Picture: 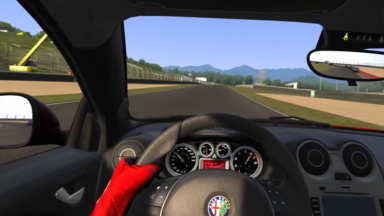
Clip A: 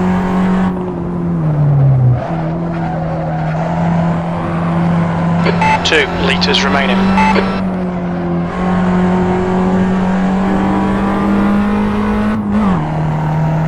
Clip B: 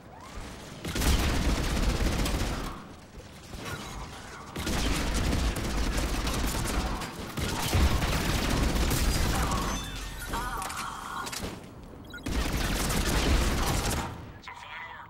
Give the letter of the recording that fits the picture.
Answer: A